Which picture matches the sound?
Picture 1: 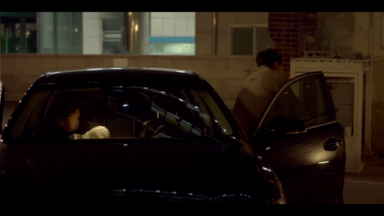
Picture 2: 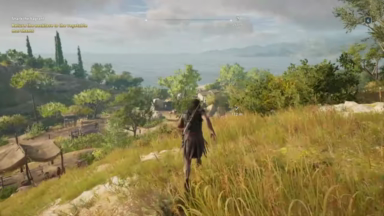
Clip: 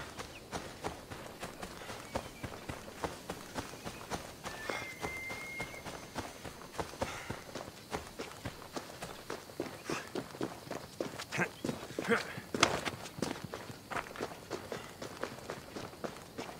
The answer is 2